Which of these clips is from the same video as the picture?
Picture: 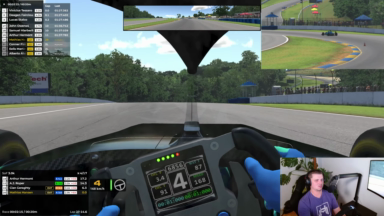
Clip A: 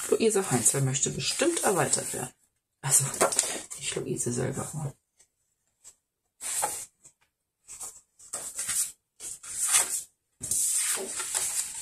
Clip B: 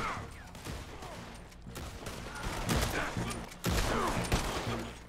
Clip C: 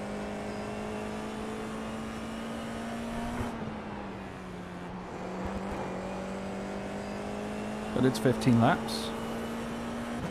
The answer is C